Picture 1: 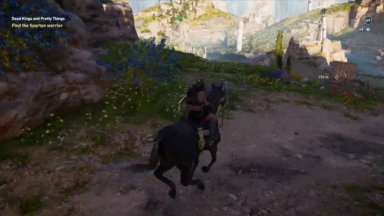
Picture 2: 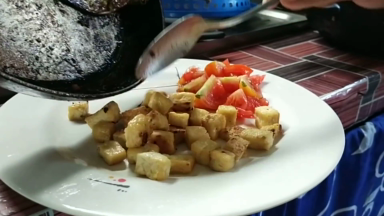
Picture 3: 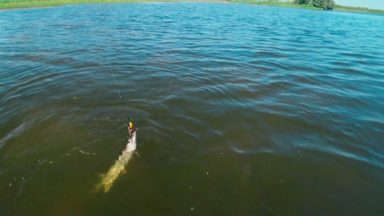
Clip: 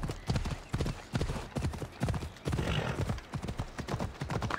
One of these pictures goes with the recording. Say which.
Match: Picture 1